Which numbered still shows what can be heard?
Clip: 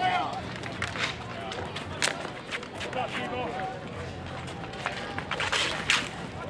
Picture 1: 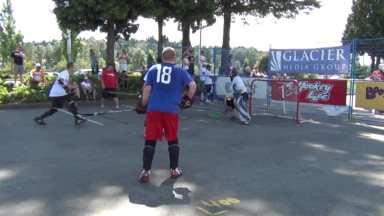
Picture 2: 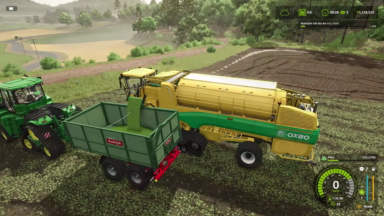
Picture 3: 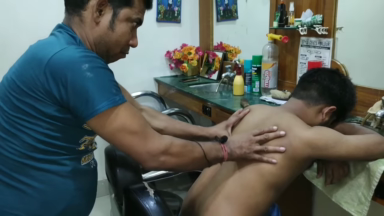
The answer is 1